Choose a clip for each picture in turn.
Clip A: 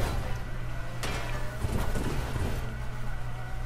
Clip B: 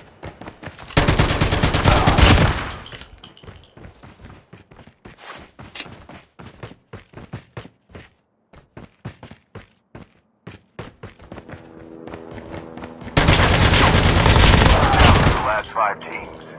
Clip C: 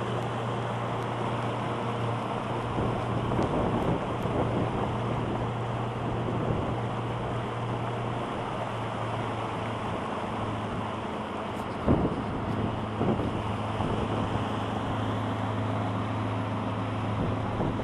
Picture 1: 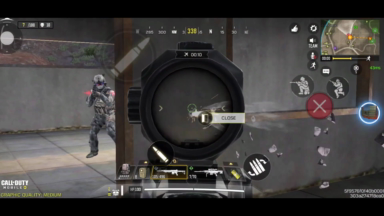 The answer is B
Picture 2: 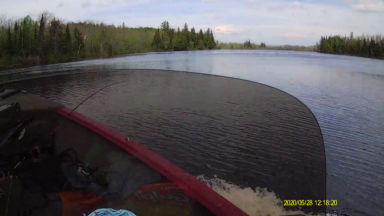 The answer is C